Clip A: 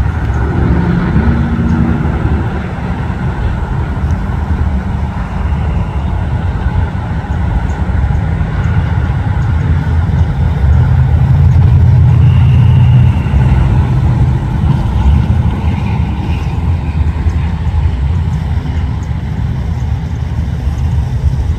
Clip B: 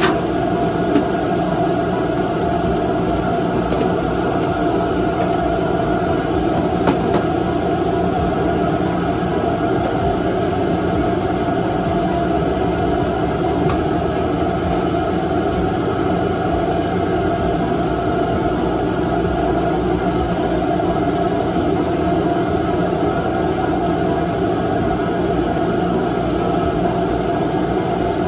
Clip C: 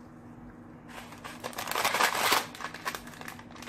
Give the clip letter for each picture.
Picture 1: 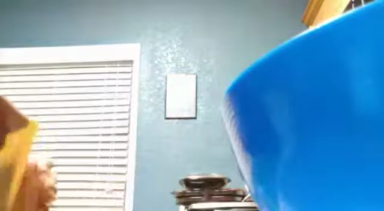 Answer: C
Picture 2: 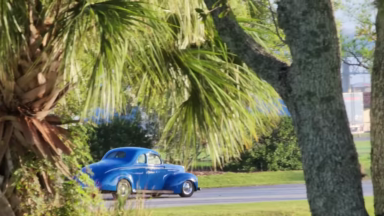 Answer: A